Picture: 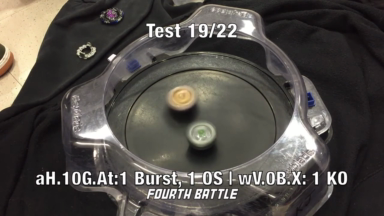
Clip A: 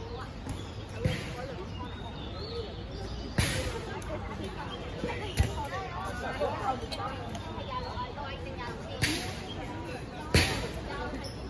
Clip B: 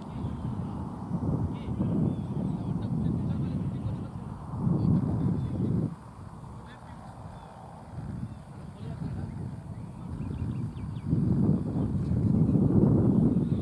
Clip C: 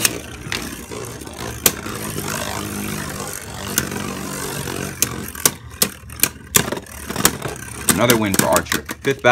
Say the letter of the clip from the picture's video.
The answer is C